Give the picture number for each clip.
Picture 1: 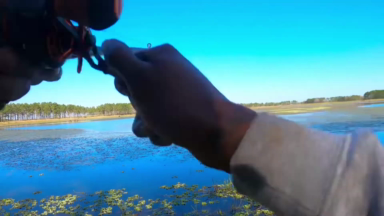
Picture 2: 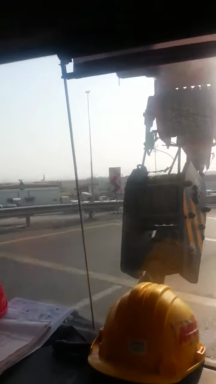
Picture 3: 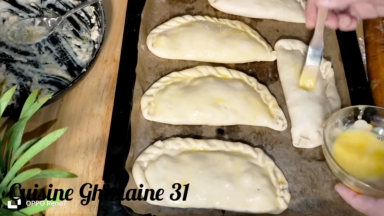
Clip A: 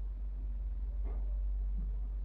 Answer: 3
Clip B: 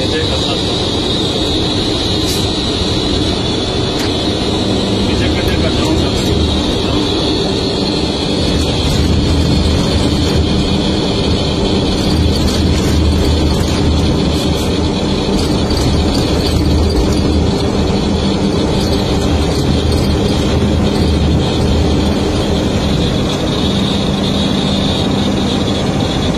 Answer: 2